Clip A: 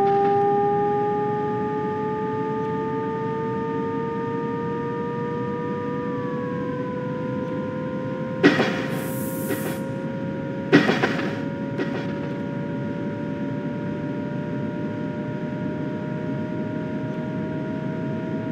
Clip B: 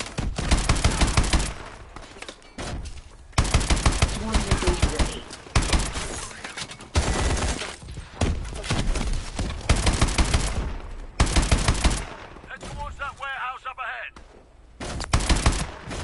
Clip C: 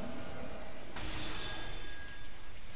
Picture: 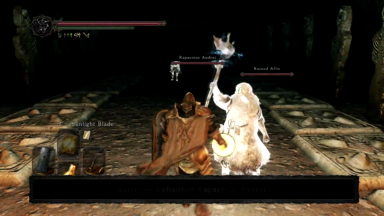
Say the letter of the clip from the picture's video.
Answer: C